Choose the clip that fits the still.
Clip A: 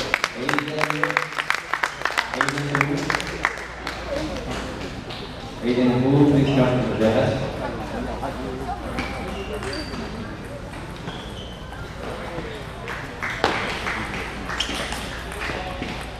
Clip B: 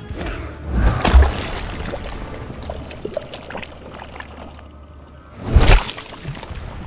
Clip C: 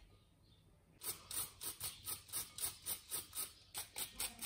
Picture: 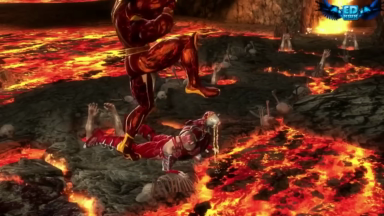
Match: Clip B